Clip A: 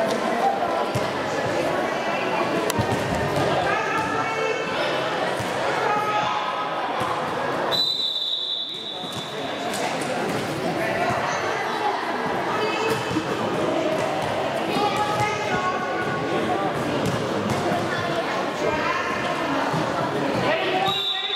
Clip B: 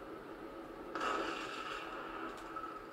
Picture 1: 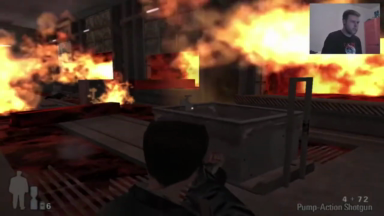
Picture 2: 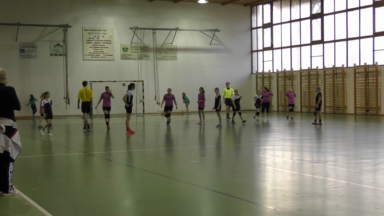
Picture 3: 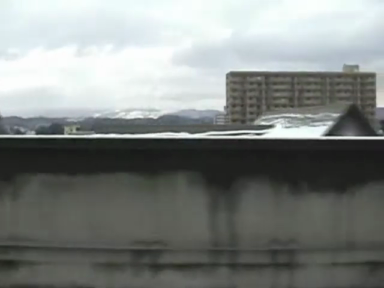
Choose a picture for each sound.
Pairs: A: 2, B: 1